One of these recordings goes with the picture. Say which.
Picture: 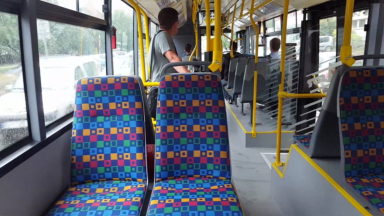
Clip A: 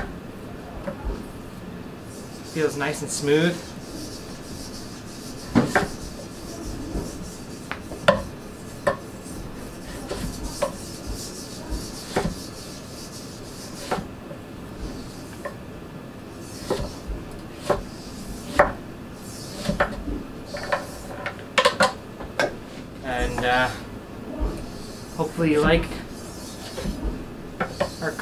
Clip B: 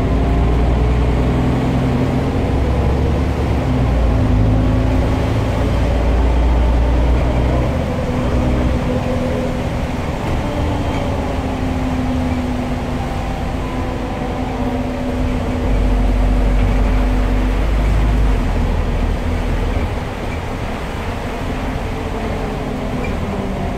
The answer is B